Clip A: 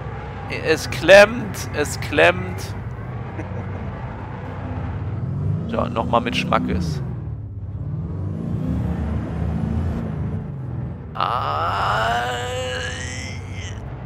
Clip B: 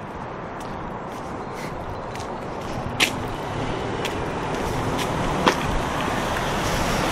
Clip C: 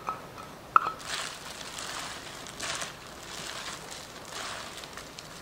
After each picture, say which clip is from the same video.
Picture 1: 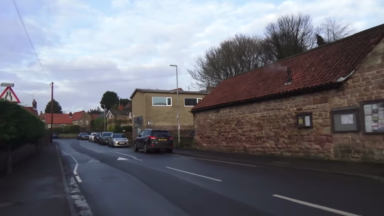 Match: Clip B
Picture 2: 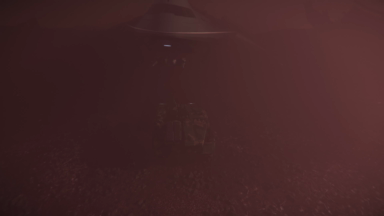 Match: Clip A